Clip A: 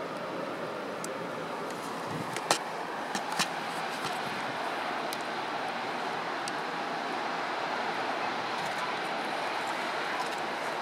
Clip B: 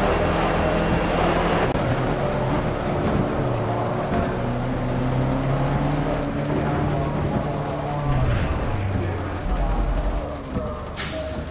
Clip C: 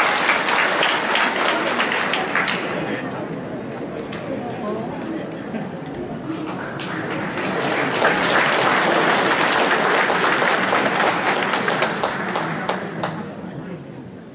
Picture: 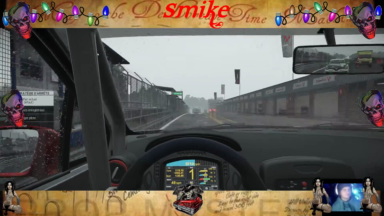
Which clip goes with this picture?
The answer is B